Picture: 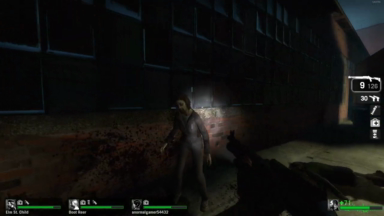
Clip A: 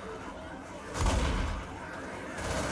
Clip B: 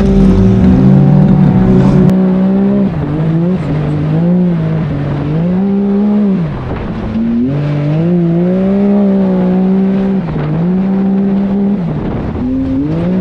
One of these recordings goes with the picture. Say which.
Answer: A